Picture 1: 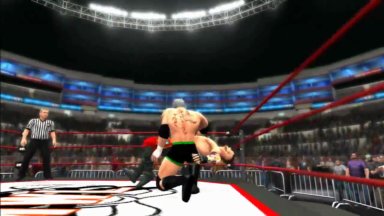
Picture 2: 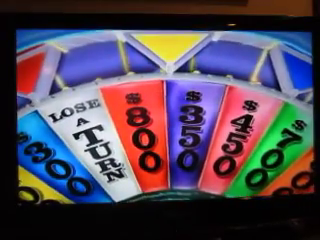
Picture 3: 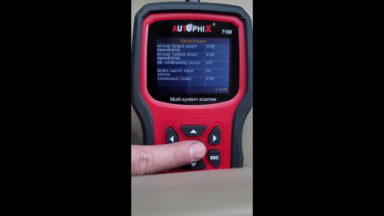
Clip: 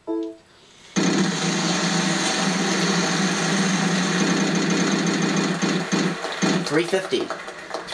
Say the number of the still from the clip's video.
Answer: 2